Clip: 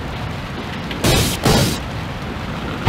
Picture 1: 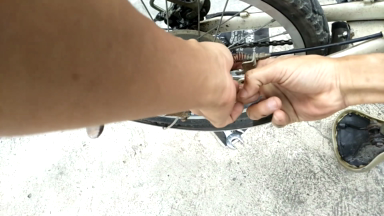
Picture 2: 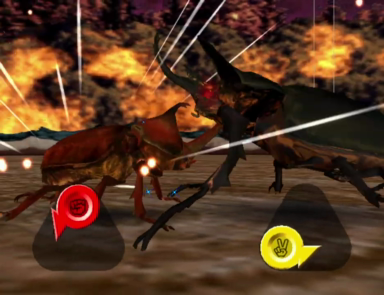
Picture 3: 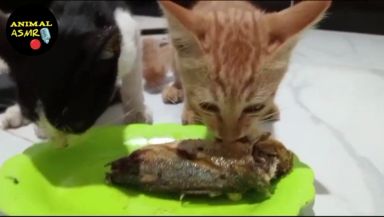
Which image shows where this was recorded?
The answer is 2